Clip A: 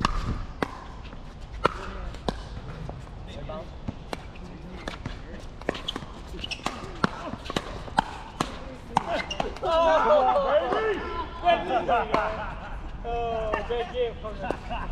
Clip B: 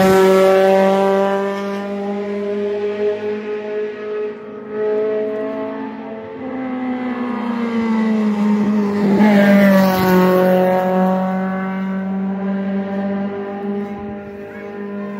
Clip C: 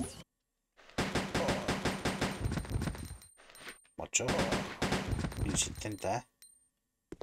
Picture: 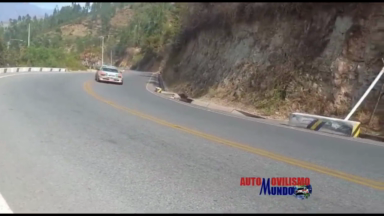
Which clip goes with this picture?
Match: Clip B